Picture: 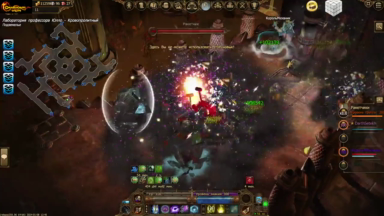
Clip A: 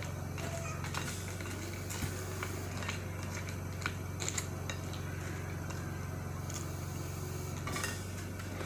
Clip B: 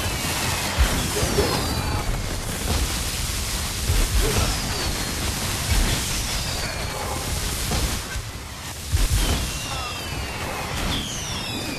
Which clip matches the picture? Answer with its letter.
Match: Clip B